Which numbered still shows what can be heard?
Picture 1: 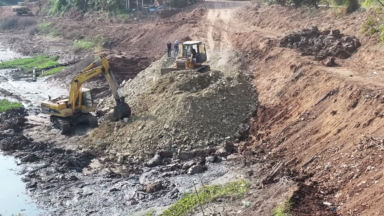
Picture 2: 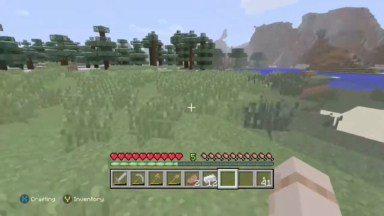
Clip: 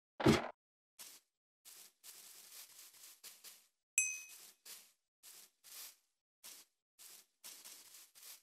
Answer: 2